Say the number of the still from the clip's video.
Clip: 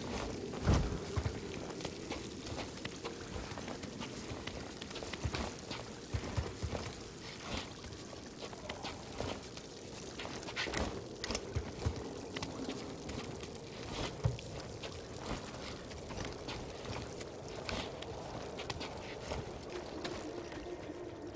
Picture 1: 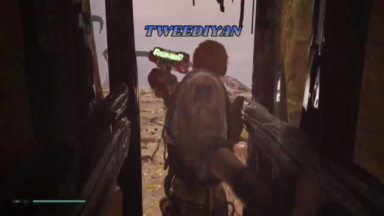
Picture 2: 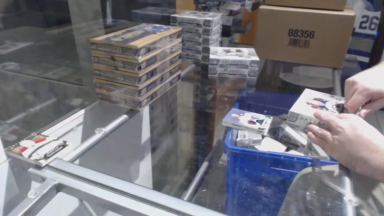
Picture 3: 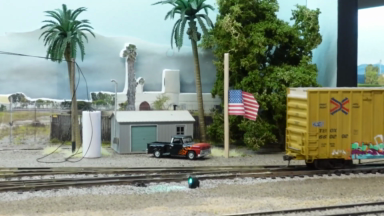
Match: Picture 1